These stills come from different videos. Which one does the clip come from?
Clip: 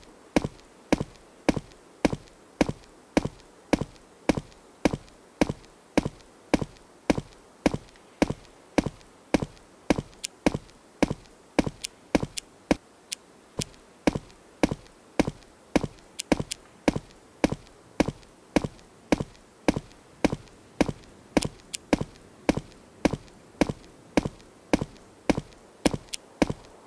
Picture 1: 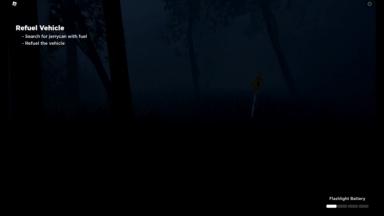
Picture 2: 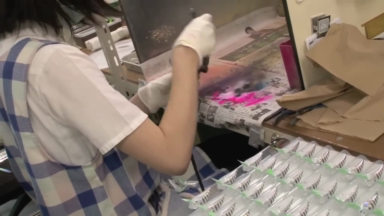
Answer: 1